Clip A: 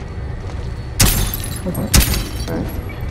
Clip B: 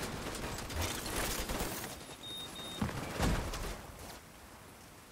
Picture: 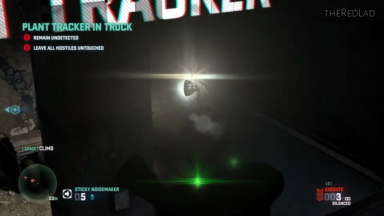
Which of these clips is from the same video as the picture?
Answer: A